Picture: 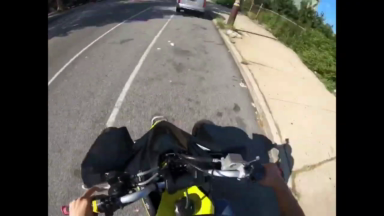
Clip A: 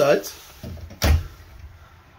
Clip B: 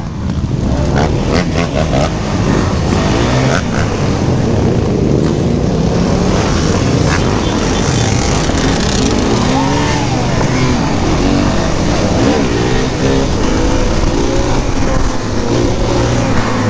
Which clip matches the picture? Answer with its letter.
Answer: B